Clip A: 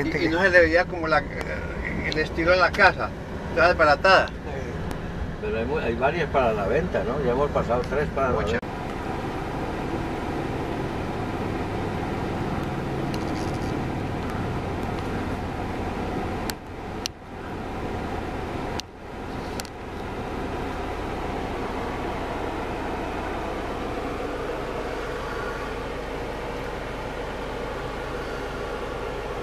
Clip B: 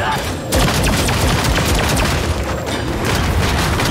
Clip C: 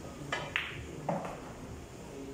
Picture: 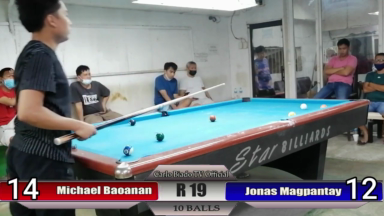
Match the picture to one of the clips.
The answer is C